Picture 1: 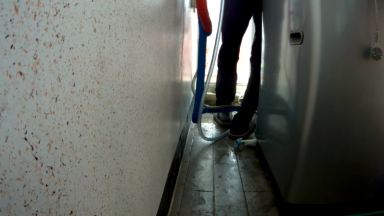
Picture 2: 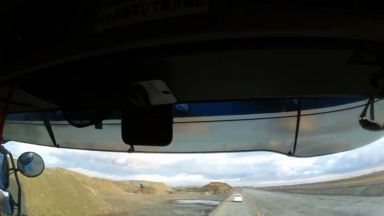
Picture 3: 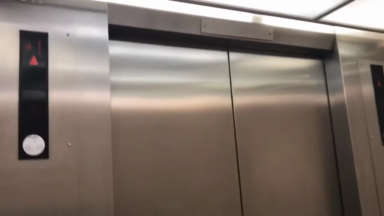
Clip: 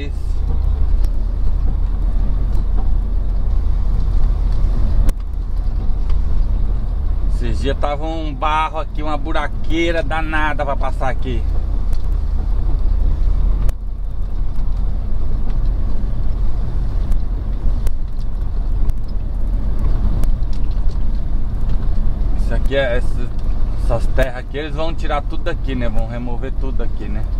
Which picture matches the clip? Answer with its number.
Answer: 2